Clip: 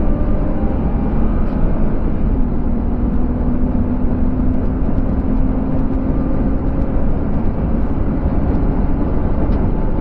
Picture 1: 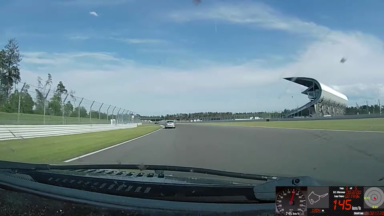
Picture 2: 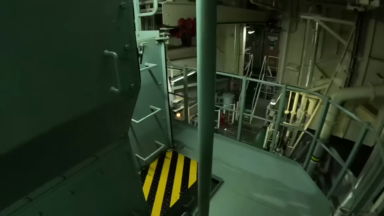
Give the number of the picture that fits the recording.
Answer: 1